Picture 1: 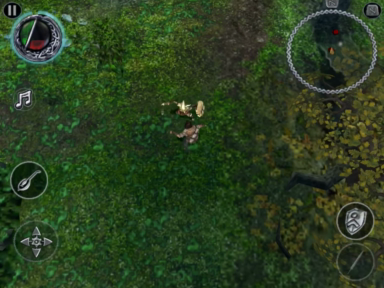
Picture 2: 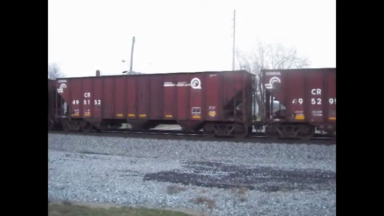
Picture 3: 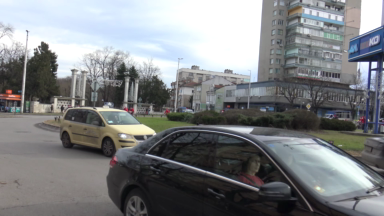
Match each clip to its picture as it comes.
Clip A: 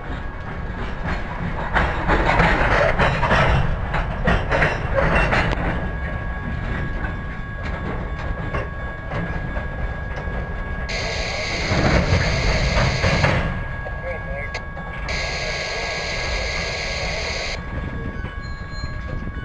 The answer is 2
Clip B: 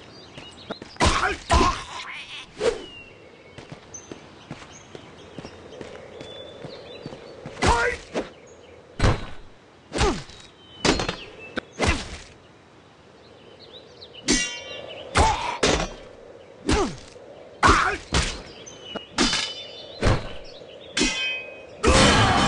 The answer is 1